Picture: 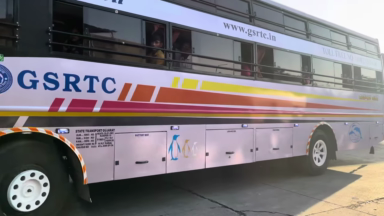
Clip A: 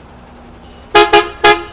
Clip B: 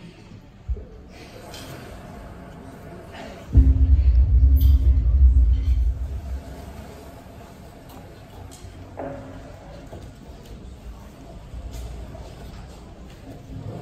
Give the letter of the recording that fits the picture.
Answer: A